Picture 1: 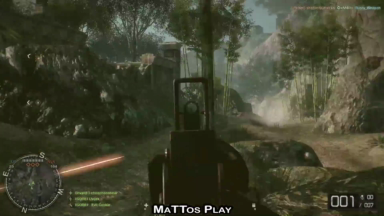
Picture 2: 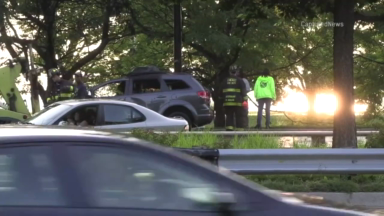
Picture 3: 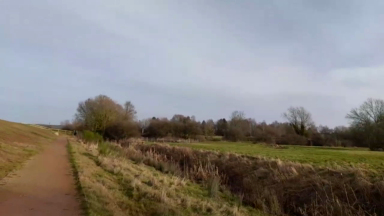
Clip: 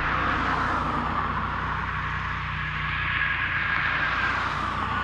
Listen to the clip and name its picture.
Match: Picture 2